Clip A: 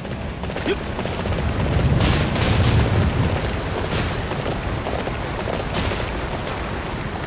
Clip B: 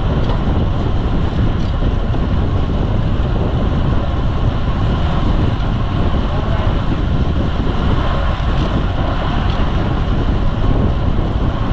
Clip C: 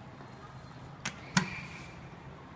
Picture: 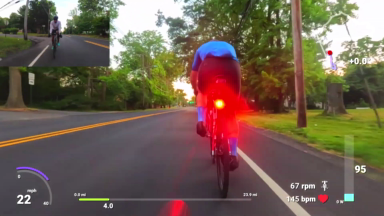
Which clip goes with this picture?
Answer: B